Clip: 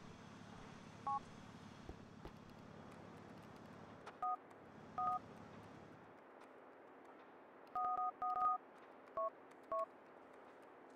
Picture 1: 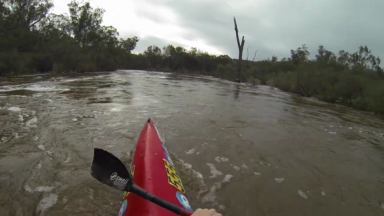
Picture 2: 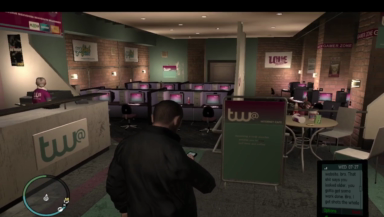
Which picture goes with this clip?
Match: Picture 2